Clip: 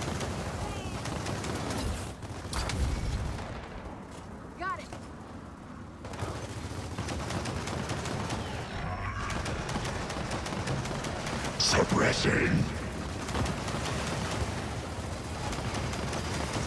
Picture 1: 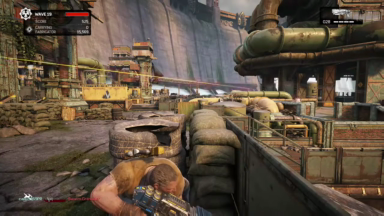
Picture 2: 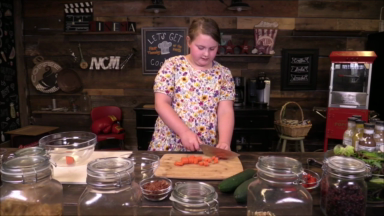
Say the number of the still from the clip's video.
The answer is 1